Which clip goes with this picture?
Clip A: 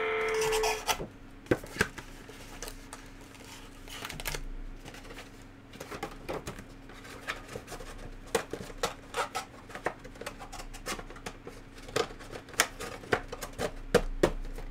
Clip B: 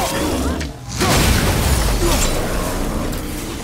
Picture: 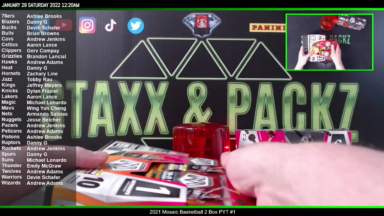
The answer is A